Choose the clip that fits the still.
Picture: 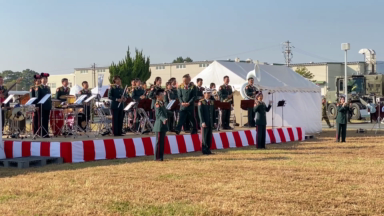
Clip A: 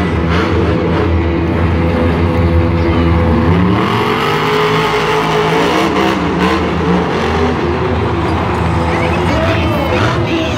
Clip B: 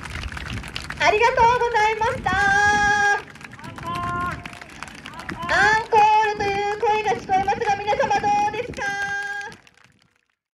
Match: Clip B